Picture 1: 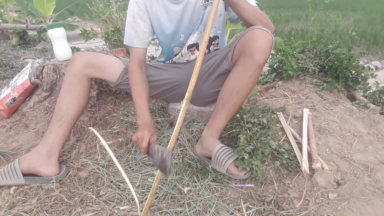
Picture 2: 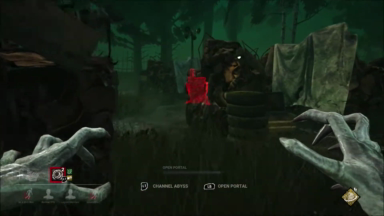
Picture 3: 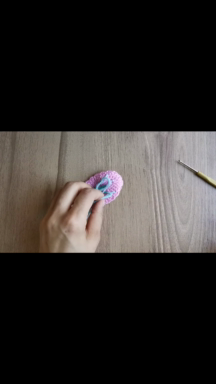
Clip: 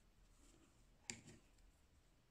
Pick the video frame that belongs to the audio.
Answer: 3